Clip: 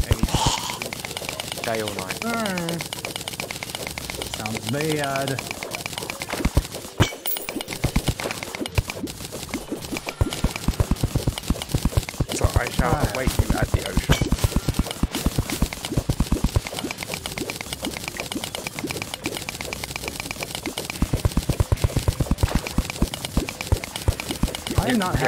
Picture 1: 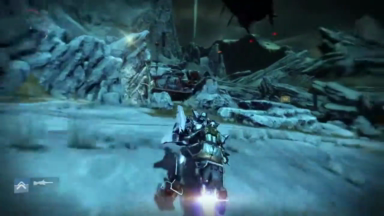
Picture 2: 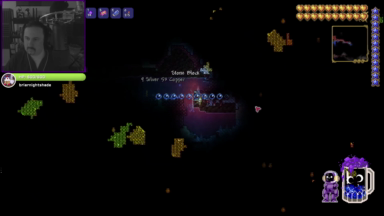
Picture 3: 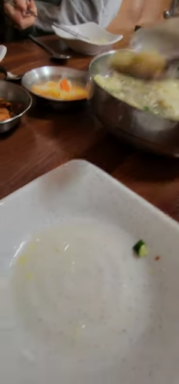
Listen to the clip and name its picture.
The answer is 2